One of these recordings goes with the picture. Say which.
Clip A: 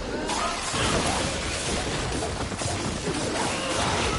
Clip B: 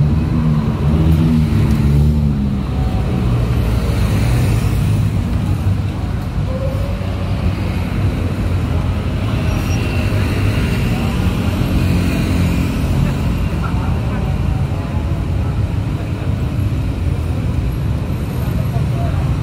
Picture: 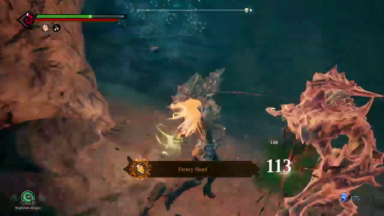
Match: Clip A